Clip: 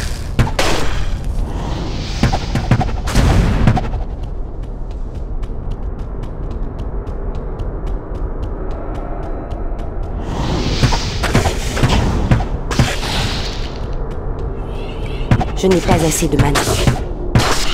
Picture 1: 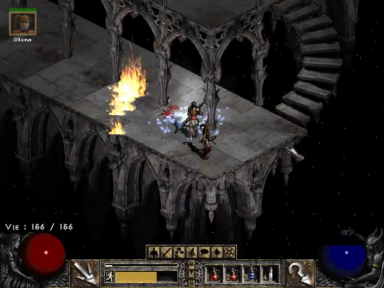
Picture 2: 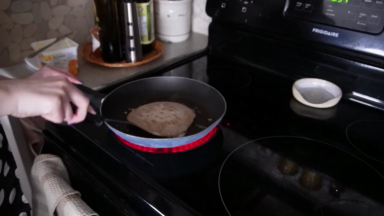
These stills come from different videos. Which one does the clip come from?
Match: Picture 1